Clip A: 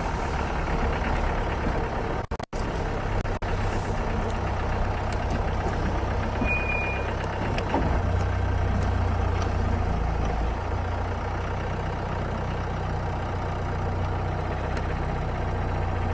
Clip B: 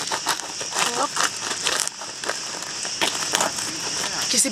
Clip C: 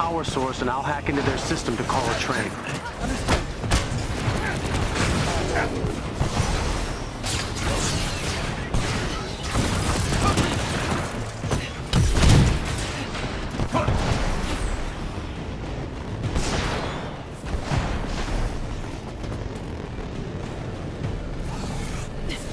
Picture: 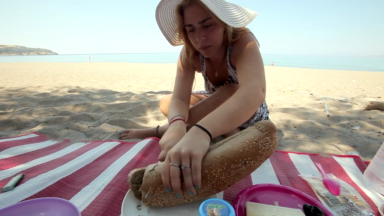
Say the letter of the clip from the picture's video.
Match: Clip B